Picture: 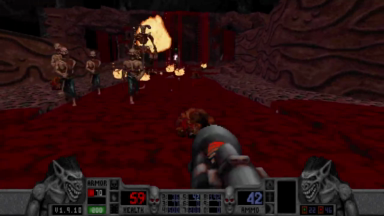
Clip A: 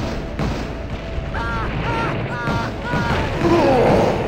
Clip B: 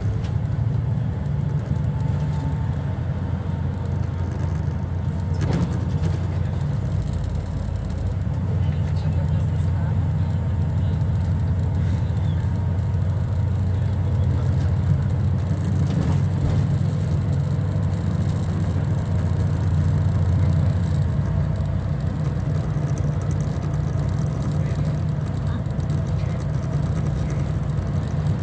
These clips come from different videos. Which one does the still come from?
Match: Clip A